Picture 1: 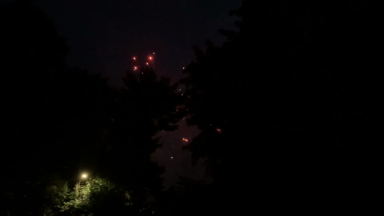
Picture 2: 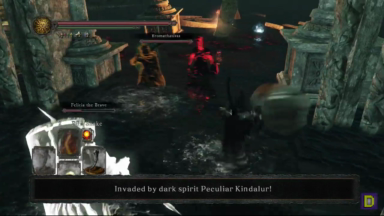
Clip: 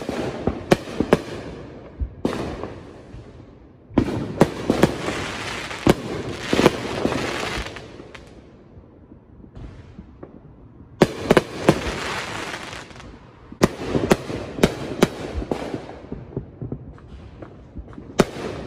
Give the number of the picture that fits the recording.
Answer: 1